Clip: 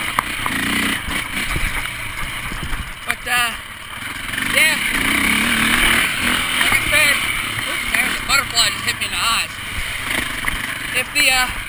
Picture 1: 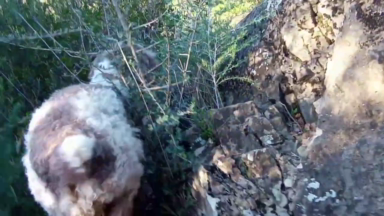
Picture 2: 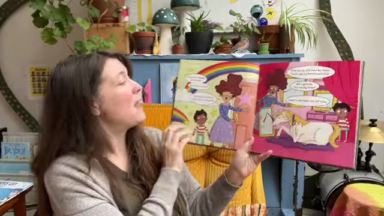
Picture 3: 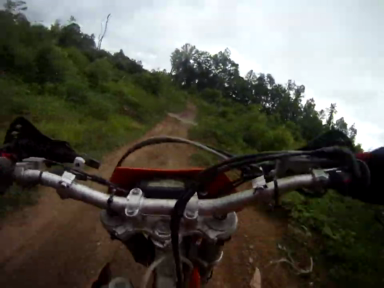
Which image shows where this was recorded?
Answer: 3